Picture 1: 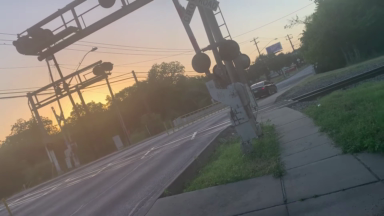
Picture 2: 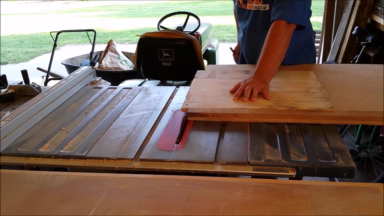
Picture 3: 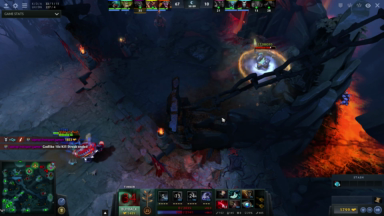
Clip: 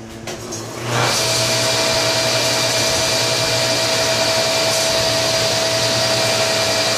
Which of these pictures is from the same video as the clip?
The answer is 2